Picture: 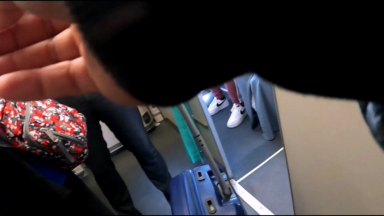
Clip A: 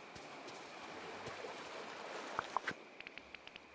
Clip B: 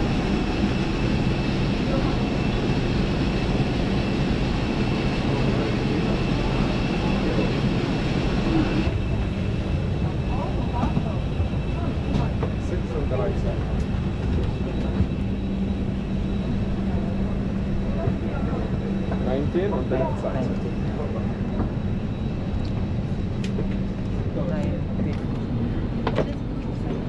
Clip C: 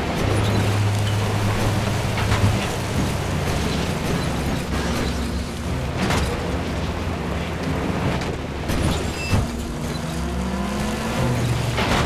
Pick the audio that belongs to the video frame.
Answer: B